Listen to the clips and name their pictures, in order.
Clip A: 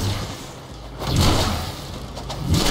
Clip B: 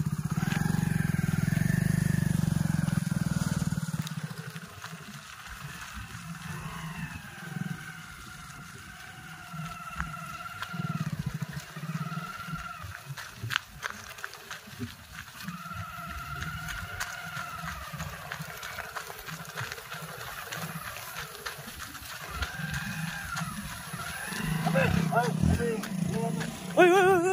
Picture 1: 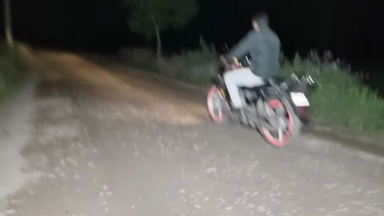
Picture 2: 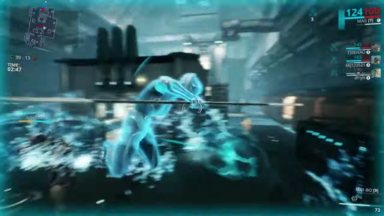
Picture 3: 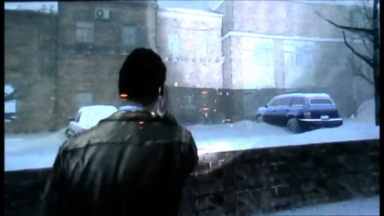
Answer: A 2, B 1